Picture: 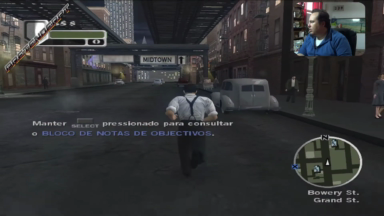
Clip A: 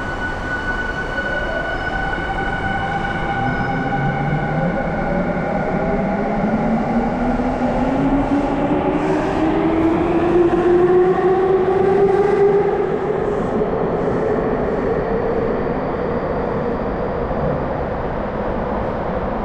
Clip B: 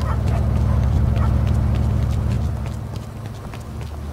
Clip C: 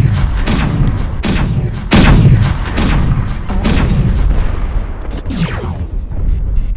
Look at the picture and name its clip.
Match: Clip B